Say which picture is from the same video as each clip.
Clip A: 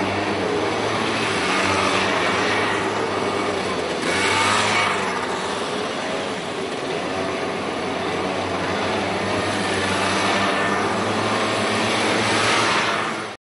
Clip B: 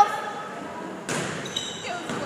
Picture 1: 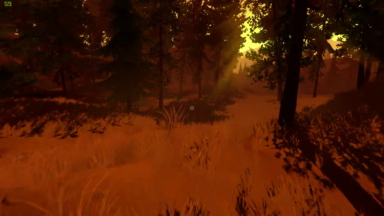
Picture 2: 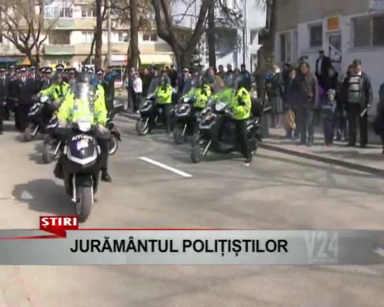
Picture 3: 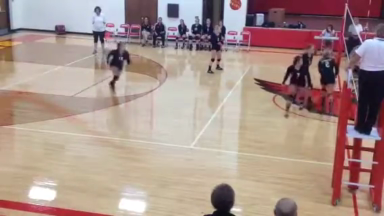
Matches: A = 2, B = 3